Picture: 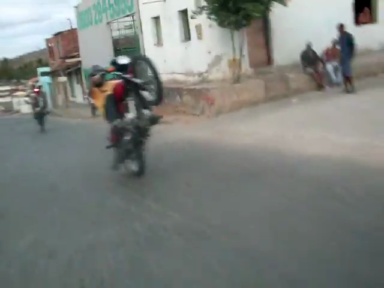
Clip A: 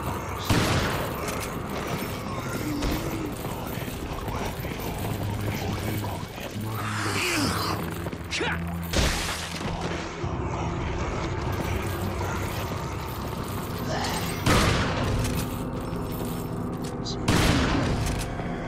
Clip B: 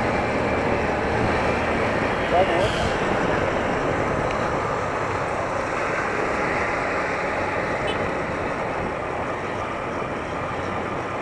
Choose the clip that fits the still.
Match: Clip B